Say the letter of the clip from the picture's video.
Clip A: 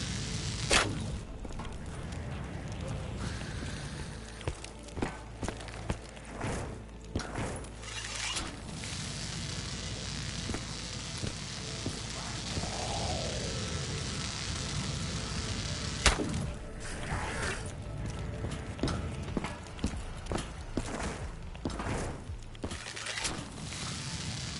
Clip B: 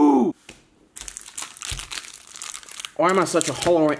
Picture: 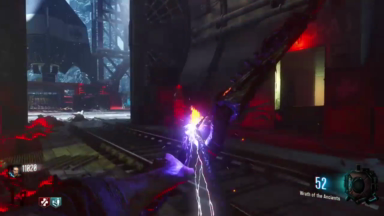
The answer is A